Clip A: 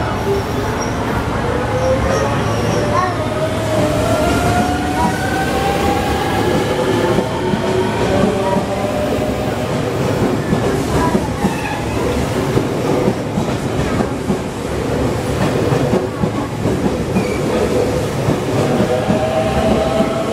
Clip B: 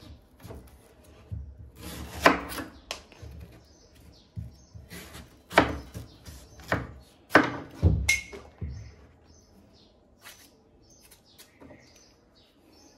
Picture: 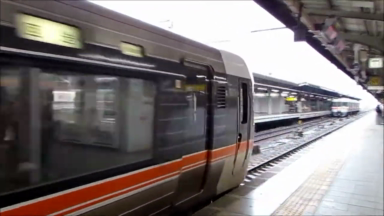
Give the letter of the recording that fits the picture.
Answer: A